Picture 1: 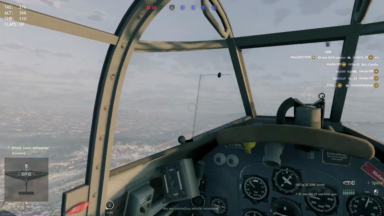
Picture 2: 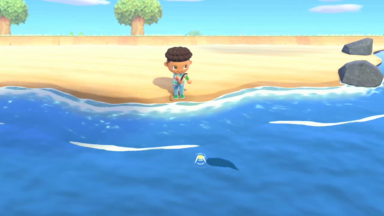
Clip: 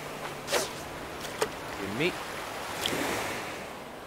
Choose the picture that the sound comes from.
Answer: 2